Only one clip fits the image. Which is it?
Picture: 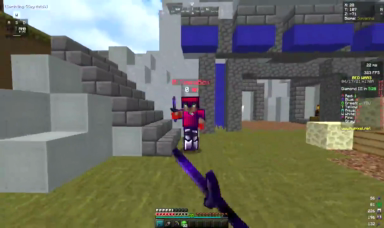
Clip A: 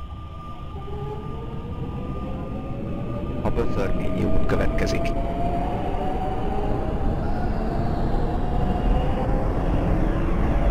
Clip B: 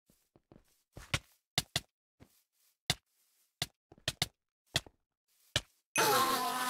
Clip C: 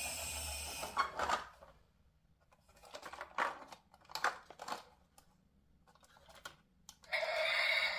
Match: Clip B